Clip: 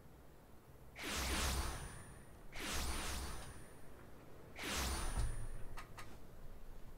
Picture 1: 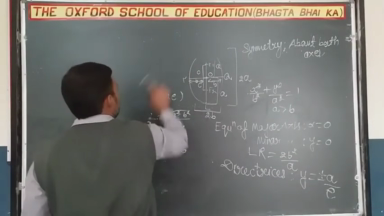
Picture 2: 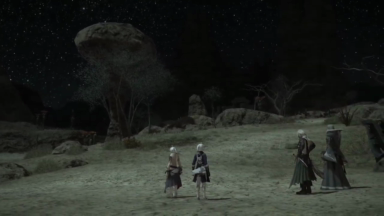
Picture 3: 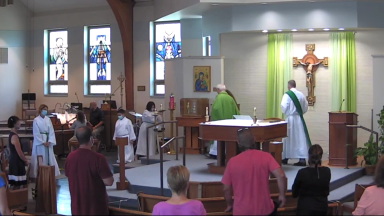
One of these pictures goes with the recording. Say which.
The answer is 2